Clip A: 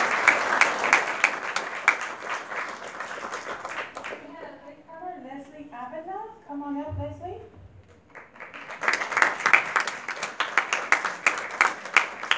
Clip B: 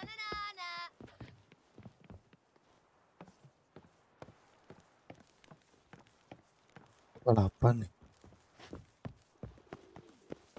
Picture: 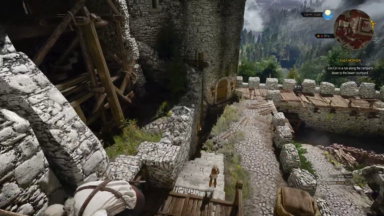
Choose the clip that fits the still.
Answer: B